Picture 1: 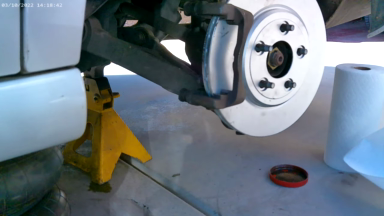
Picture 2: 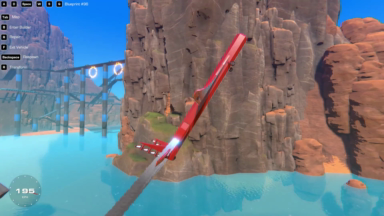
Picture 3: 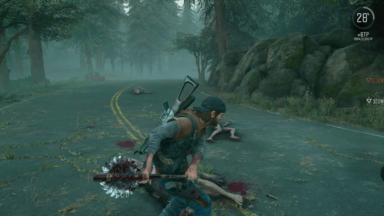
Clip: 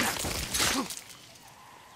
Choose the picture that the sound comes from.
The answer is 3